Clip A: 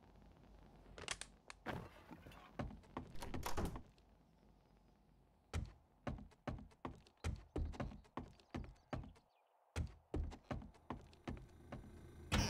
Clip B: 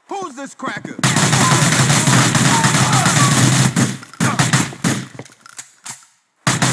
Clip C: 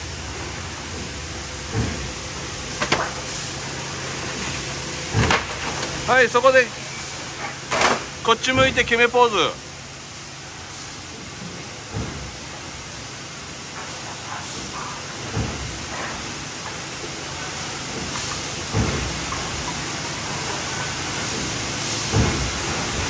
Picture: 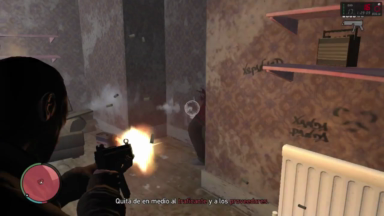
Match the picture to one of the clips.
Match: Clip B